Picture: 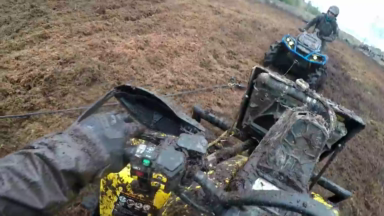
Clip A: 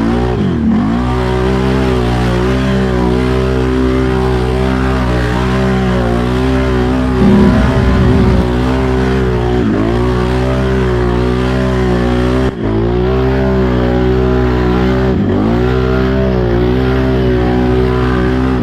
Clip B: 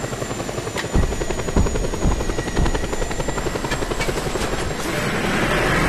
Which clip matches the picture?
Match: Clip A